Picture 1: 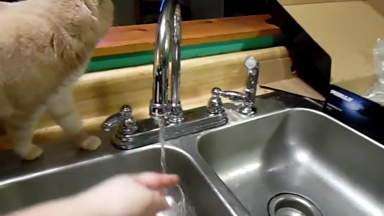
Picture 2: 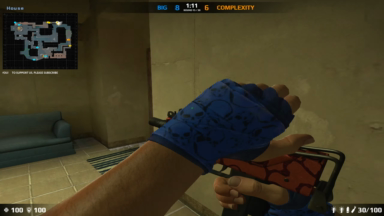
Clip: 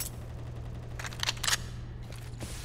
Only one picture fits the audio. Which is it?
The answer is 2